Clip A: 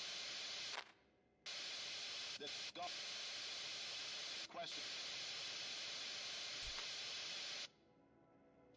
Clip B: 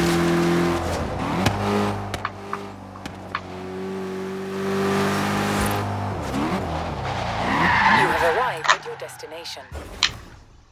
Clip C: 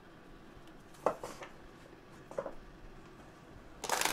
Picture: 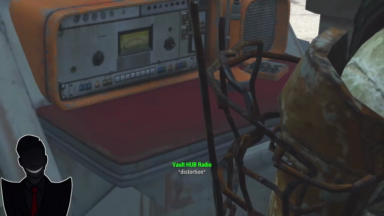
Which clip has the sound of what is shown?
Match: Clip A